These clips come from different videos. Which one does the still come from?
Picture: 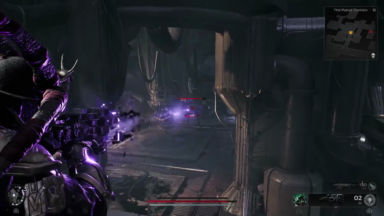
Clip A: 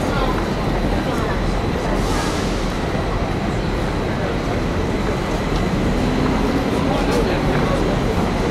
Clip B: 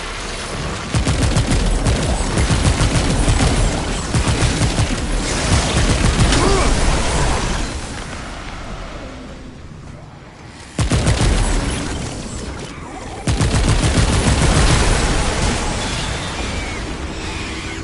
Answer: B